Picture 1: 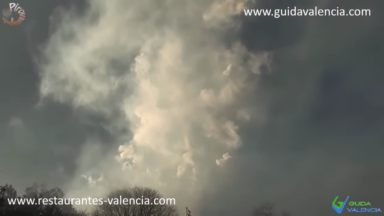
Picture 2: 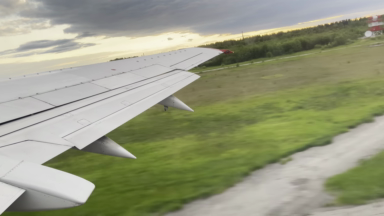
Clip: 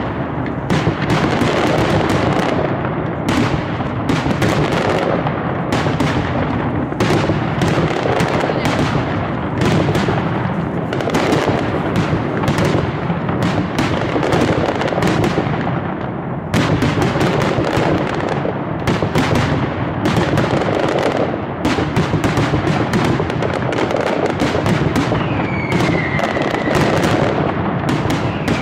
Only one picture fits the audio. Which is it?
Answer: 1